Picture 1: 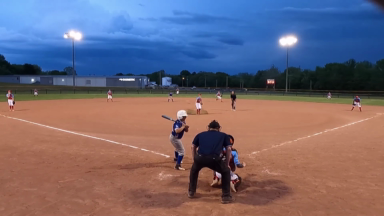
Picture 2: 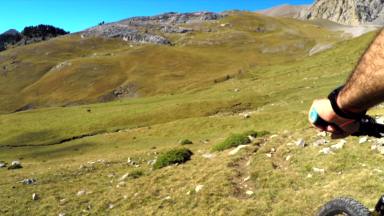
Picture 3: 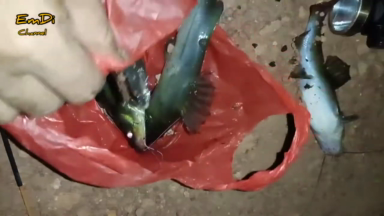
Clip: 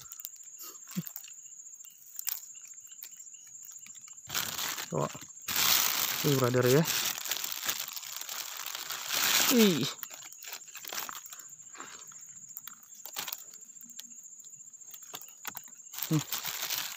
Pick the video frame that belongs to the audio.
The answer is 3